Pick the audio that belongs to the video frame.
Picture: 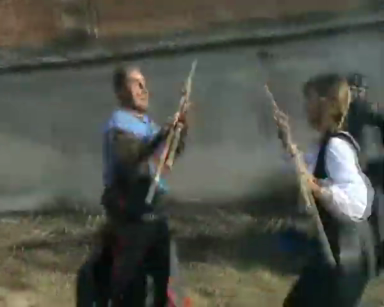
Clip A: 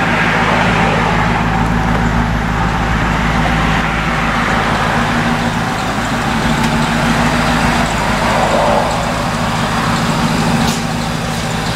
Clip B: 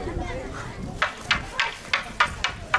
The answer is B